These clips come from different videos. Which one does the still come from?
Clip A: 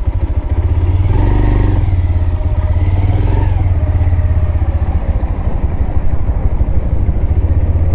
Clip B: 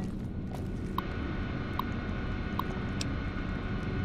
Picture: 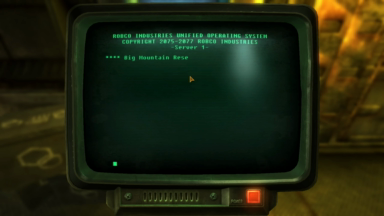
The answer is B